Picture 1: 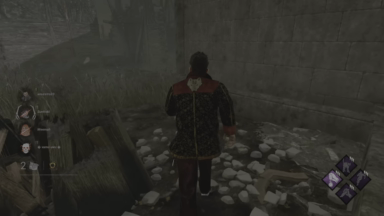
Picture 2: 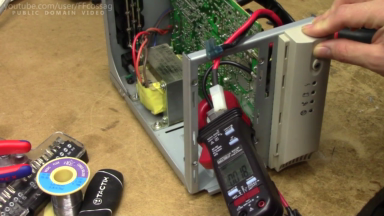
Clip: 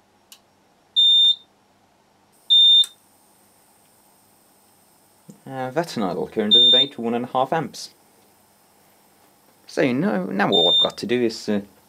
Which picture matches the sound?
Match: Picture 2